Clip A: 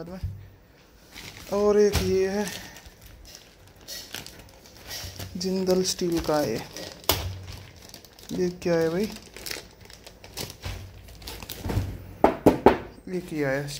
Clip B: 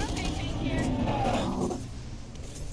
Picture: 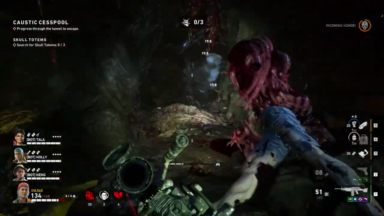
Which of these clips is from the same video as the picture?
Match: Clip B